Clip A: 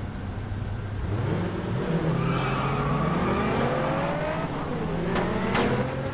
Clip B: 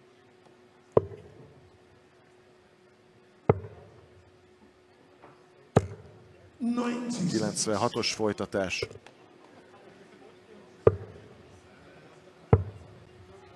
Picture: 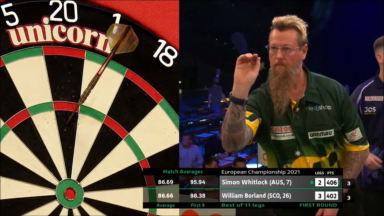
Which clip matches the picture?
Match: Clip B